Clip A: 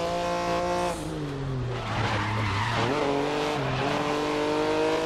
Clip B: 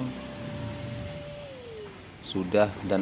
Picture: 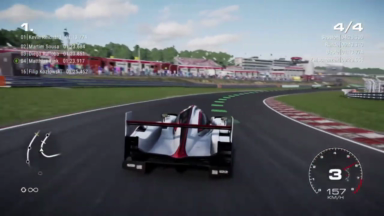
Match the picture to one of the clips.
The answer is A